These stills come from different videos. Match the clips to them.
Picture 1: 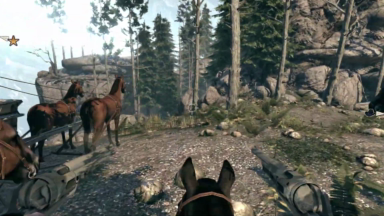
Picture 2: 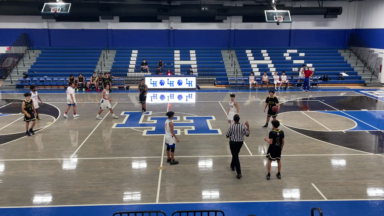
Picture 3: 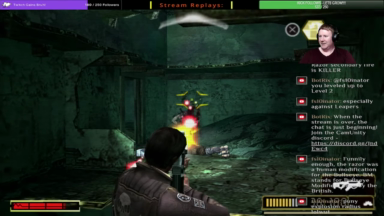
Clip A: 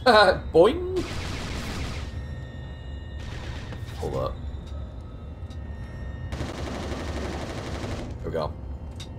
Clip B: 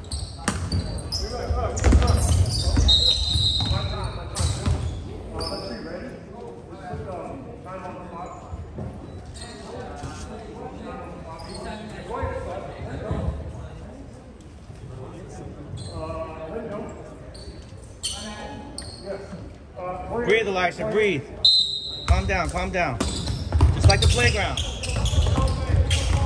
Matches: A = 3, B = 2